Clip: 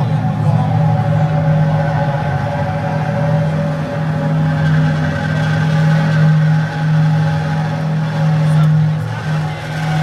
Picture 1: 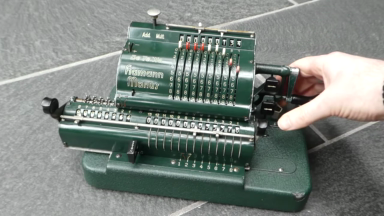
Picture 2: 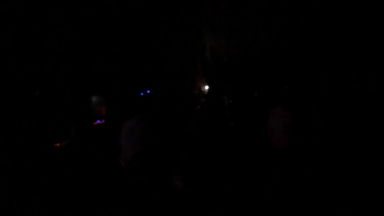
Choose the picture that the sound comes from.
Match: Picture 2